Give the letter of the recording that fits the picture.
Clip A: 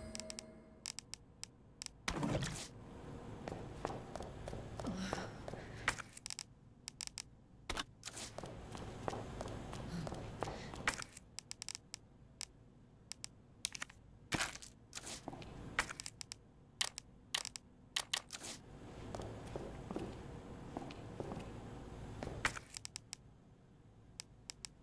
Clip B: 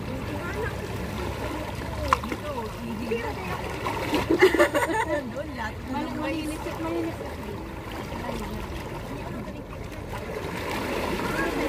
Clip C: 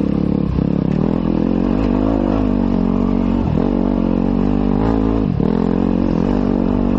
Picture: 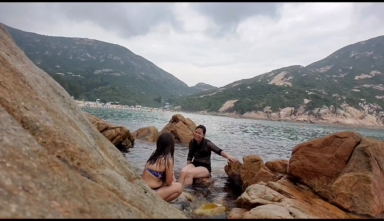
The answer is B